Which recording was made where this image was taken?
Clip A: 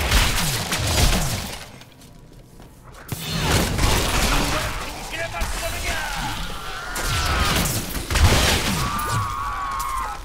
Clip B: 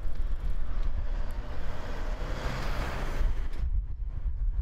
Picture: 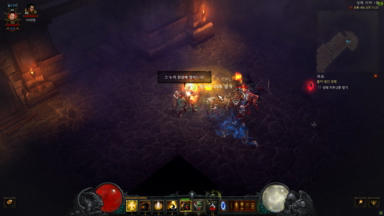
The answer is A